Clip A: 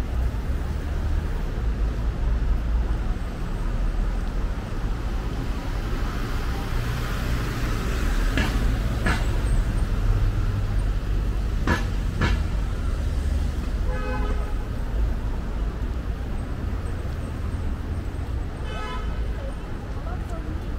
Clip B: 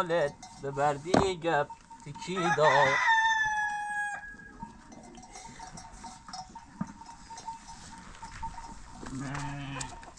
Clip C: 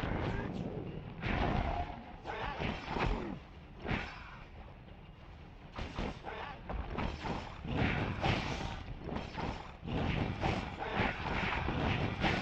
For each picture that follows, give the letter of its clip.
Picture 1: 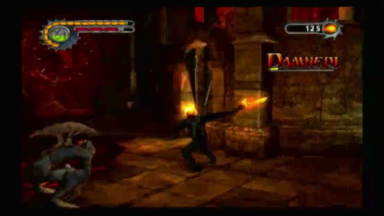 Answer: C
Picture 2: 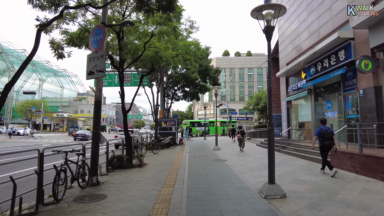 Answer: A